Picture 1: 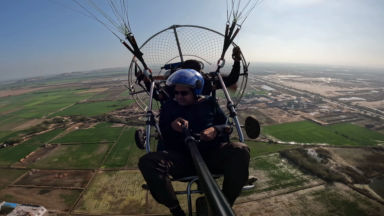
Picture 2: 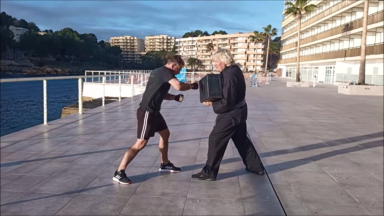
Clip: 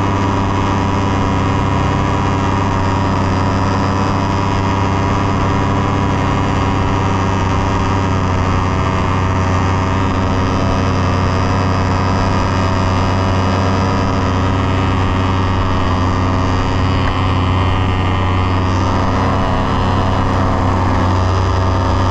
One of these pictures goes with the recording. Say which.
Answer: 1